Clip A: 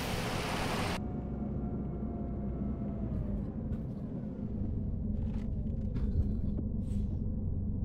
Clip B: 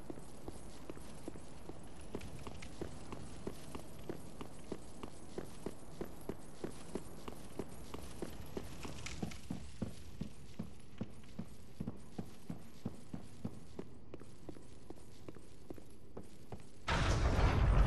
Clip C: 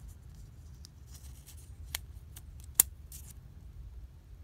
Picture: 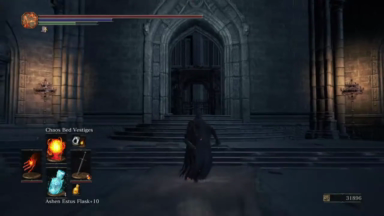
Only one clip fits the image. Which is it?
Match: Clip B